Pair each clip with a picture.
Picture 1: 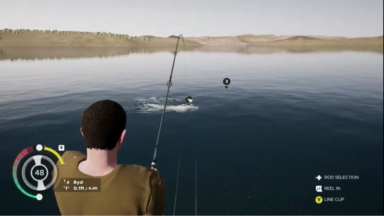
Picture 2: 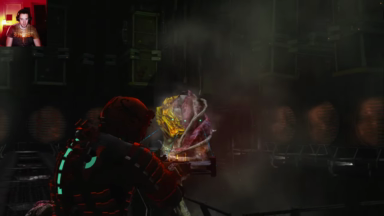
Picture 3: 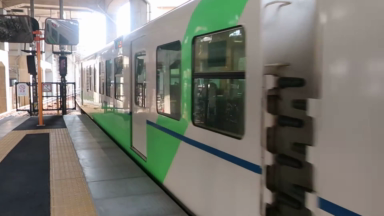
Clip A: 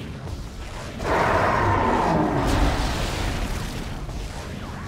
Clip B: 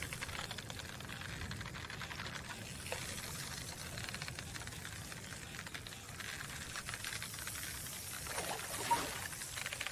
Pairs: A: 2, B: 1